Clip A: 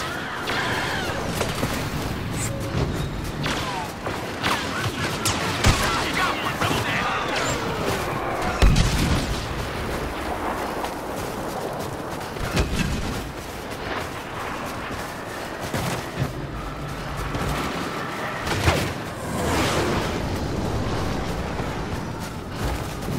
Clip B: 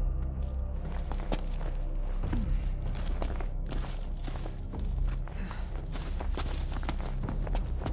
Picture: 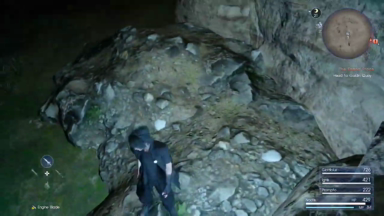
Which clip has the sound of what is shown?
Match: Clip B